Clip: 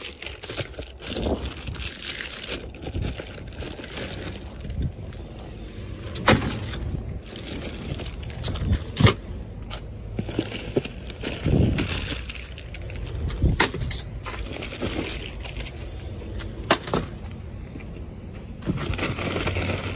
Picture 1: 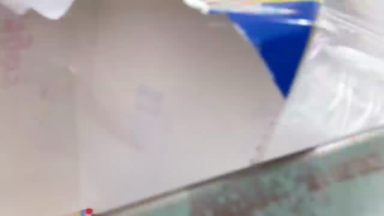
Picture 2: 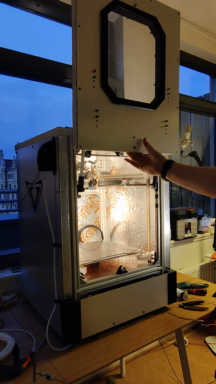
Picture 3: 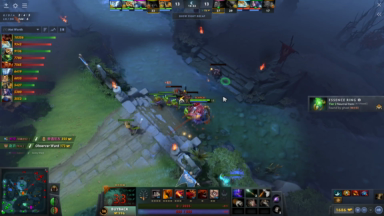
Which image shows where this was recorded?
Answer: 1